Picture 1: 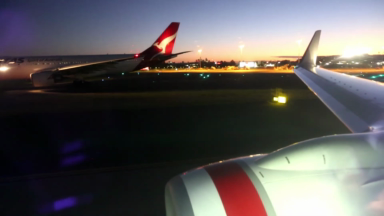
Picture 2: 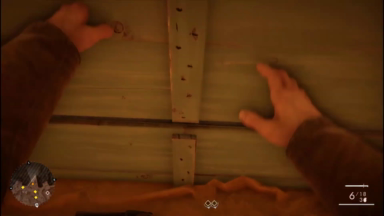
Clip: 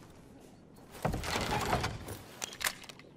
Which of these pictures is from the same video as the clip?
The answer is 2